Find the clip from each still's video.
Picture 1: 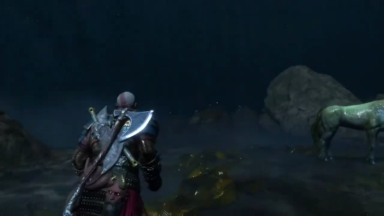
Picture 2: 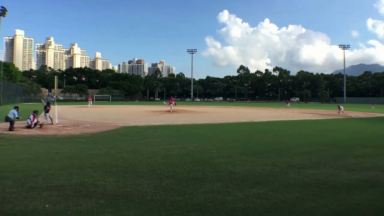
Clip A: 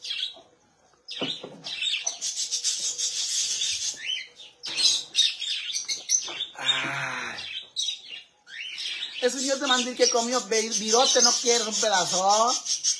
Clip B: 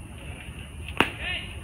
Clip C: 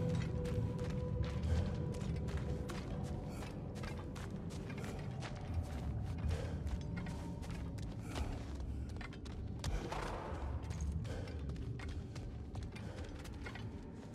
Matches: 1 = C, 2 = B